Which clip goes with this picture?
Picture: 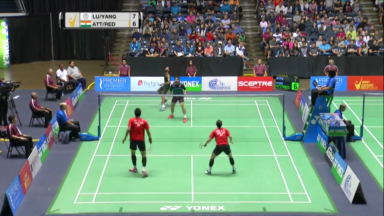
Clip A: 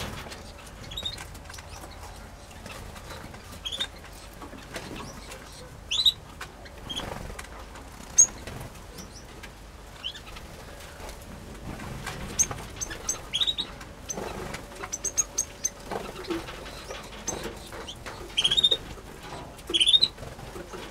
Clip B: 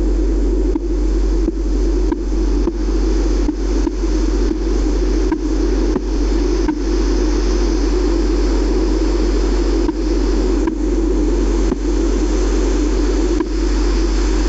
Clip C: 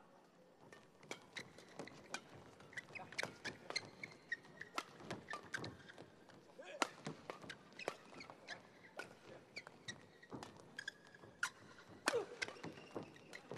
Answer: C